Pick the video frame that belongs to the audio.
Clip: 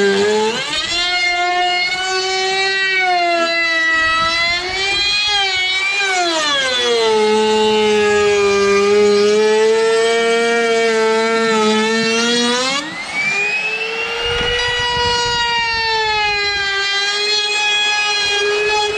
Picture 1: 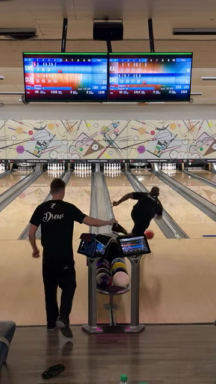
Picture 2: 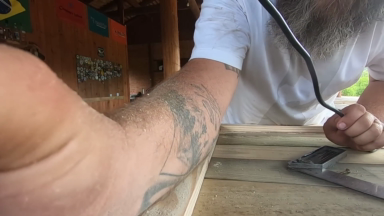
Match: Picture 2